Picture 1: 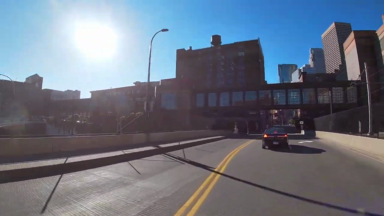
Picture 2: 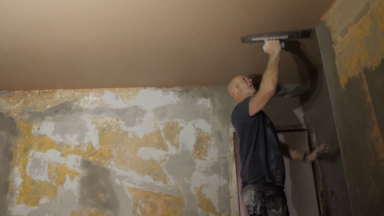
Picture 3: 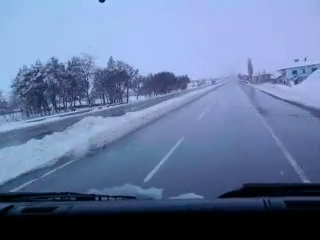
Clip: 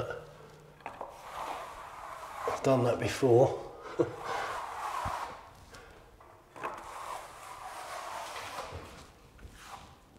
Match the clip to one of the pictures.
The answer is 2